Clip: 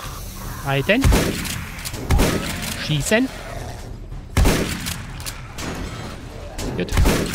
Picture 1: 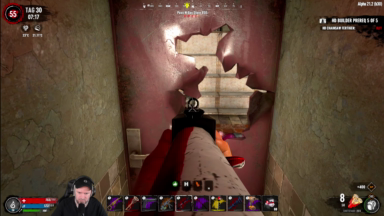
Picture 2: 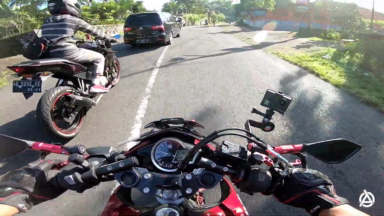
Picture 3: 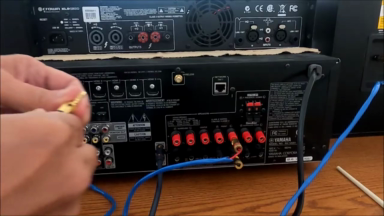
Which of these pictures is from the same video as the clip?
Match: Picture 1